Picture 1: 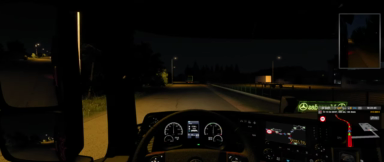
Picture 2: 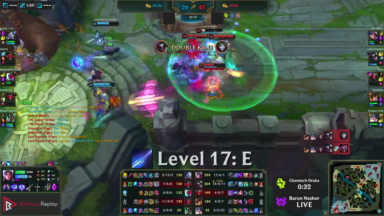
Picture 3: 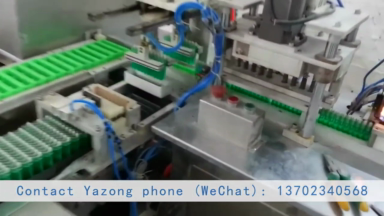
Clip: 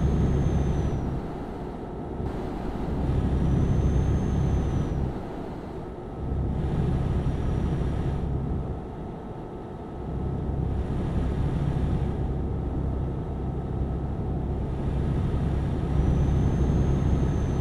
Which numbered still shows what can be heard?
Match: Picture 1